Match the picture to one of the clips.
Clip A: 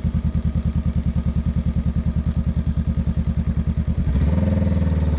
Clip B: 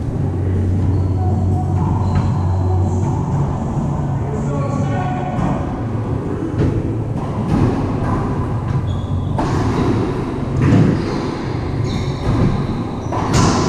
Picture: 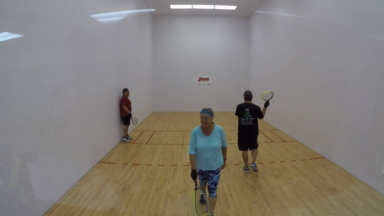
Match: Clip B